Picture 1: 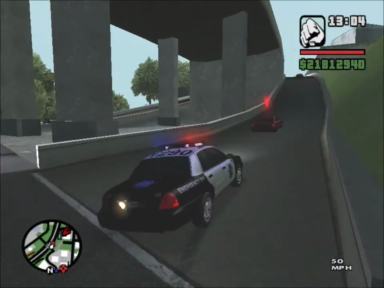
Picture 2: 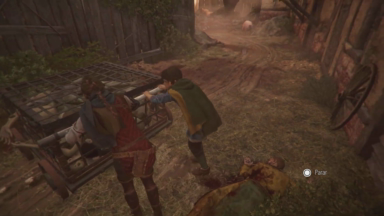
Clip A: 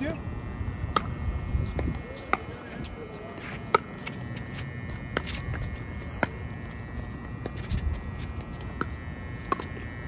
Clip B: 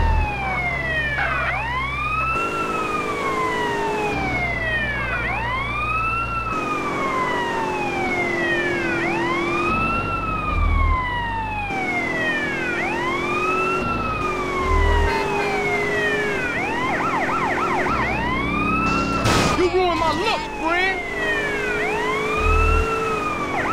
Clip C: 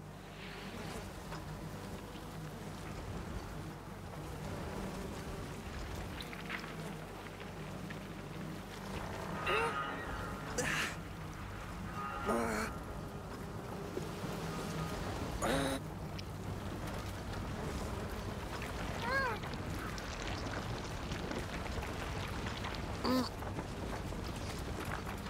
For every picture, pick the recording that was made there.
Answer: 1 B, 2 C